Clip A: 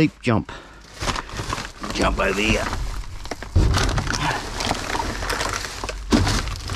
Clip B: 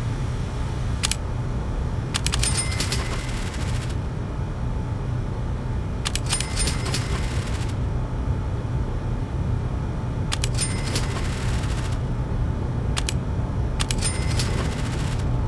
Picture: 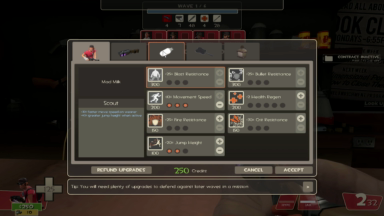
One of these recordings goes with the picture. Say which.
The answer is B